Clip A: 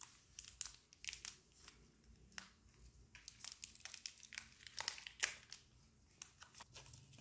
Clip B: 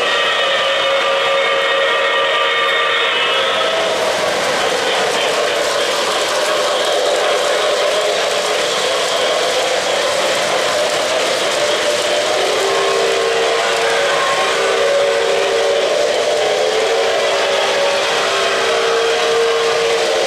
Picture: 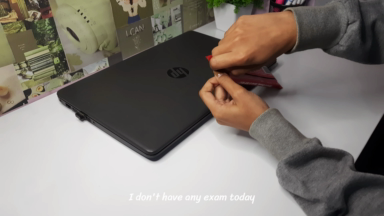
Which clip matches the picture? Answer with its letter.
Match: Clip A